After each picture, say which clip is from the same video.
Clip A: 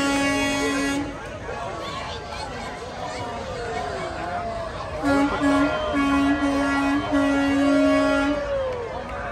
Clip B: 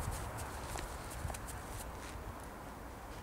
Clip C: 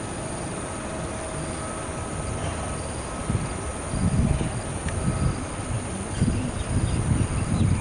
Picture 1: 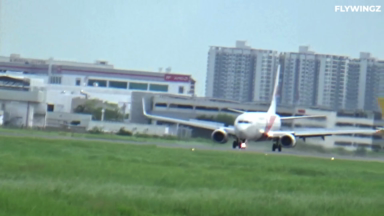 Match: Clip C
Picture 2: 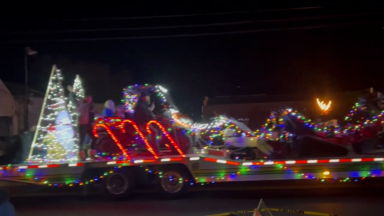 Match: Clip A